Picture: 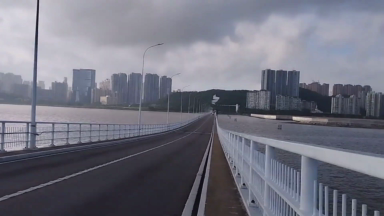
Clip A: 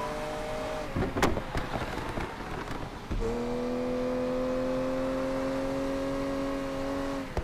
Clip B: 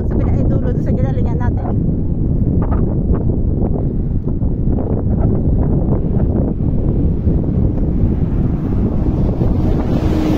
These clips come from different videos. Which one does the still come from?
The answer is B